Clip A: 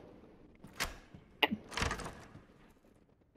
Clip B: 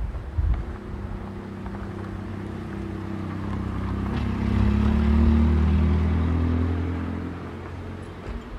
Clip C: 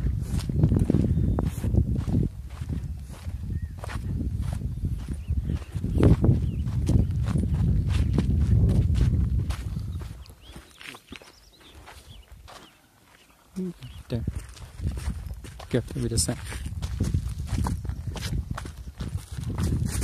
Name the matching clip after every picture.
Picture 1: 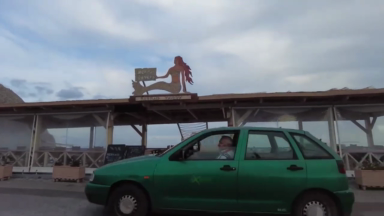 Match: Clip B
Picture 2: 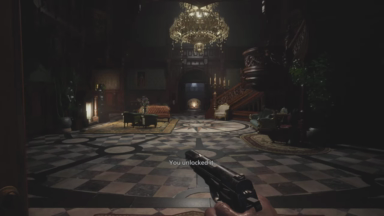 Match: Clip A